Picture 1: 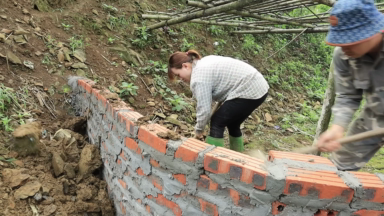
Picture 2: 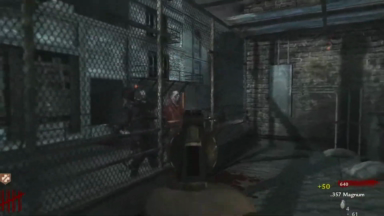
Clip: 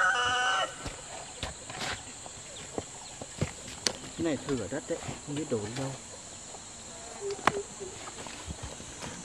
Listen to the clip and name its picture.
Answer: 1